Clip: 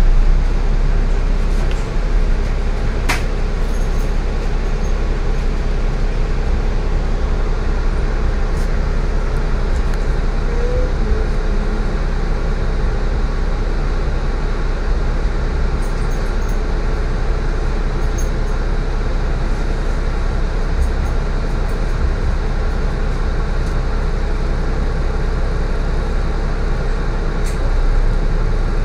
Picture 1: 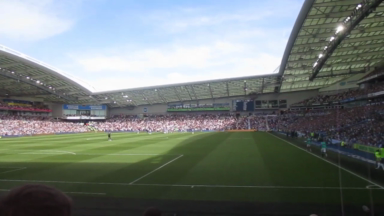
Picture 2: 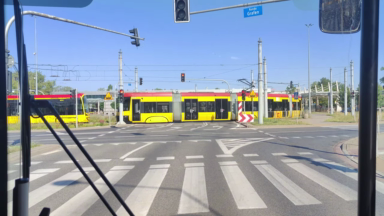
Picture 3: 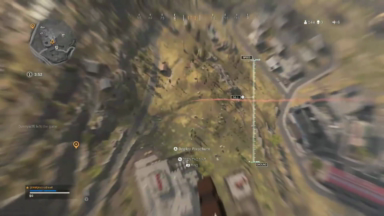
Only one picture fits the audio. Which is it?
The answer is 2